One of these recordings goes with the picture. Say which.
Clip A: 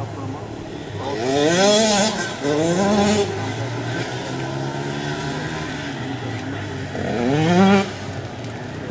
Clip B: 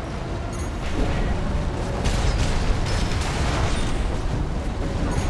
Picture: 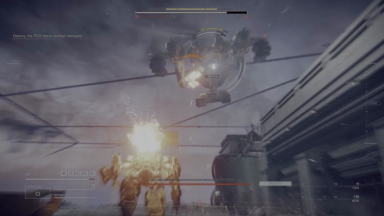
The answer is B